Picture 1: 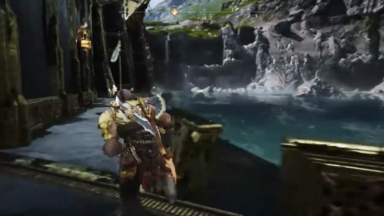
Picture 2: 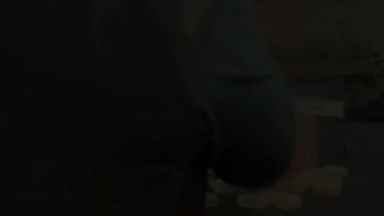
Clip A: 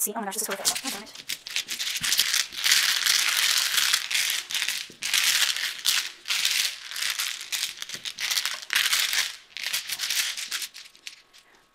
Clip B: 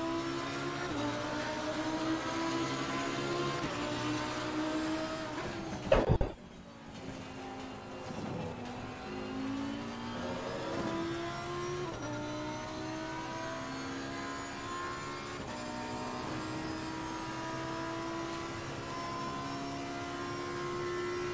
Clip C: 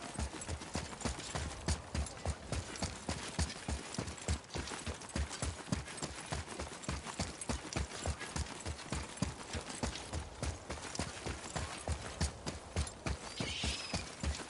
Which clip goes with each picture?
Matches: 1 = C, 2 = A